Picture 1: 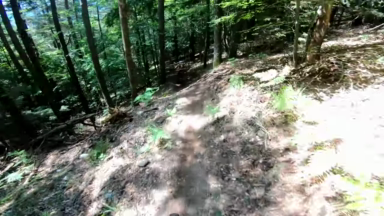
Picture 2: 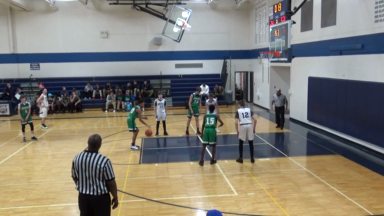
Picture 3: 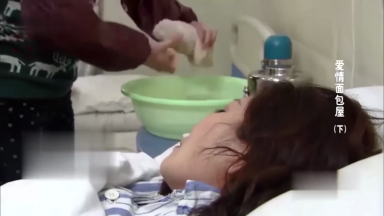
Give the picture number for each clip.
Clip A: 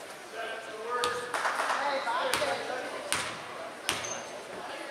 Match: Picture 2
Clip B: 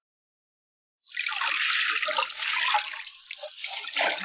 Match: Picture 3